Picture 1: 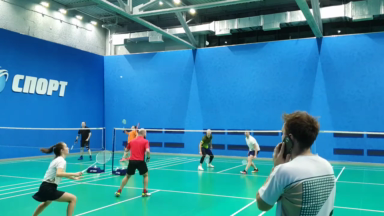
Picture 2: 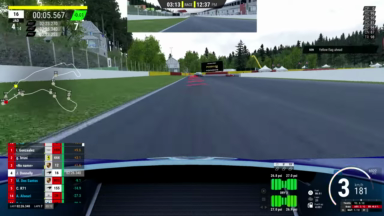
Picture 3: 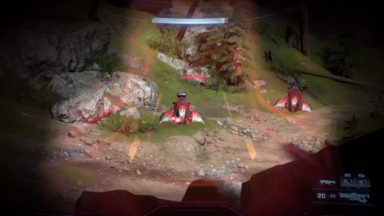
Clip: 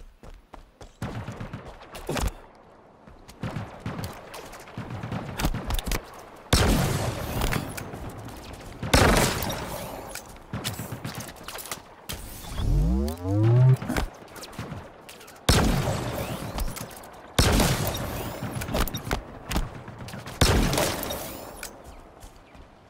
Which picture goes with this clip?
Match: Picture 3